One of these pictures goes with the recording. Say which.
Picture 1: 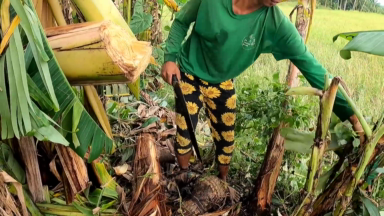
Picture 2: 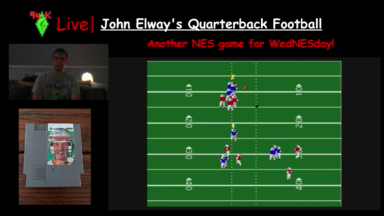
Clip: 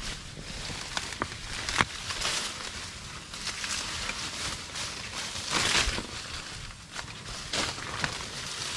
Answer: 1